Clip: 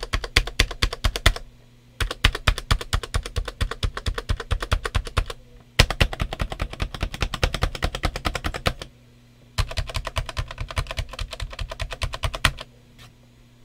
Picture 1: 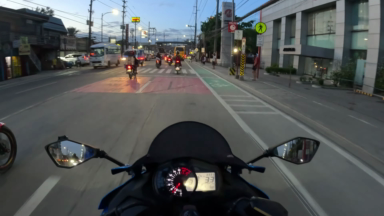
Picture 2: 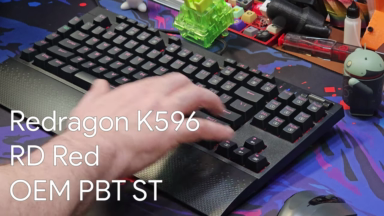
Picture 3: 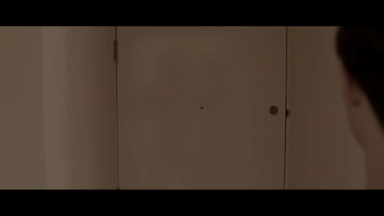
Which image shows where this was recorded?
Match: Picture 2